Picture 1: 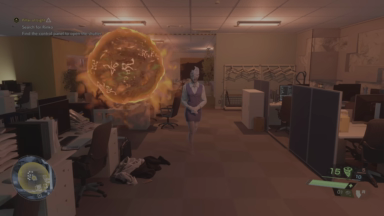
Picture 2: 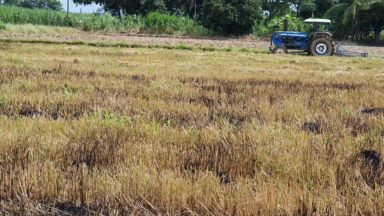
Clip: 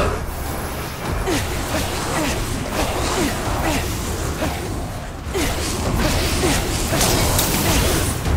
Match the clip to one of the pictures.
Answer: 1